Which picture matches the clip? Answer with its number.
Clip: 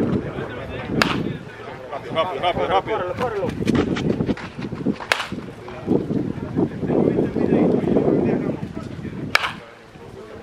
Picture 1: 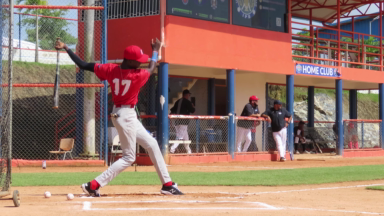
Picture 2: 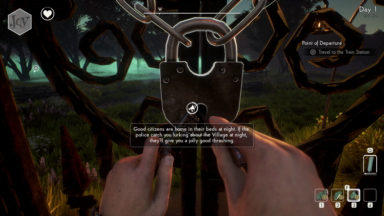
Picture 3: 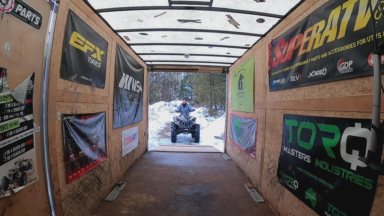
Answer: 1